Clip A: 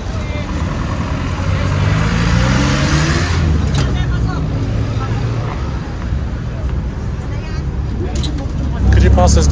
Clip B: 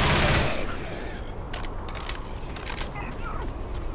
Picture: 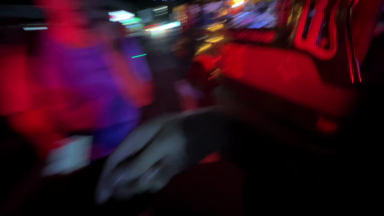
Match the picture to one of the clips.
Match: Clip A